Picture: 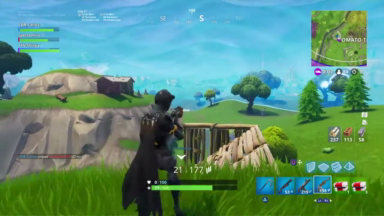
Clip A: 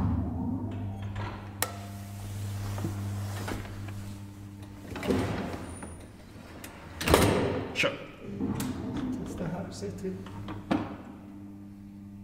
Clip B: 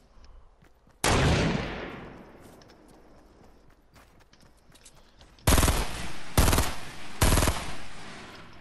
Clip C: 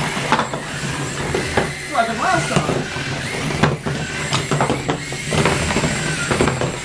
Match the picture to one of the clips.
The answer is B